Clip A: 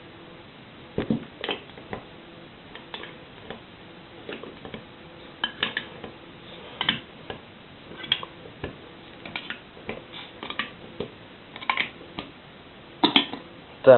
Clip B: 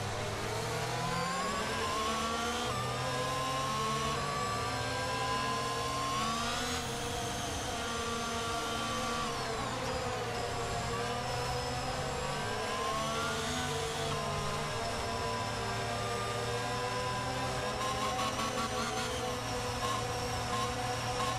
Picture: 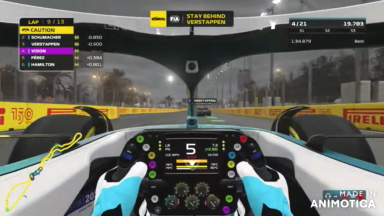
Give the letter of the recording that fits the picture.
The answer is B